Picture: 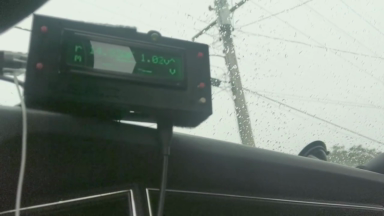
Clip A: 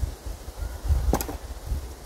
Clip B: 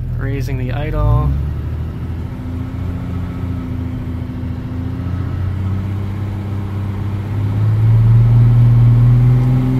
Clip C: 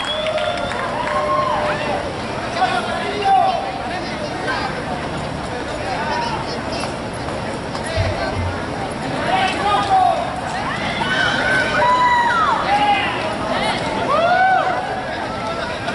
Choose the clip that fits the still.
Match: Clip B